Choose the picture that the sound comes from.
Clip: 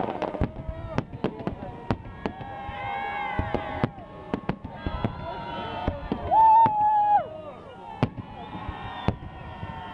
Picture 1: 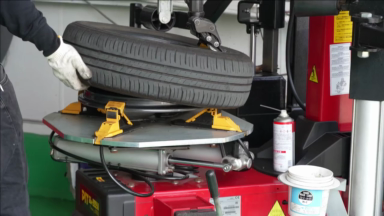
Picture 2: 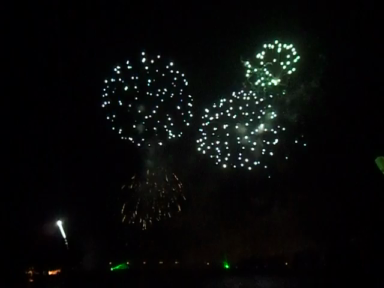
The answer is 2